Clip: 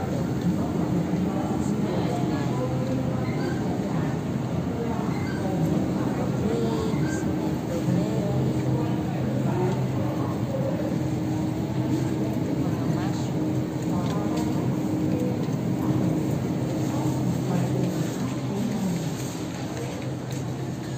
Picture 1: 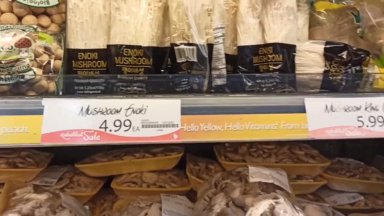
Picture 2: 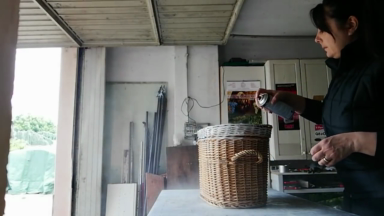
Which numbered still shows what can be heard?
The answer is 1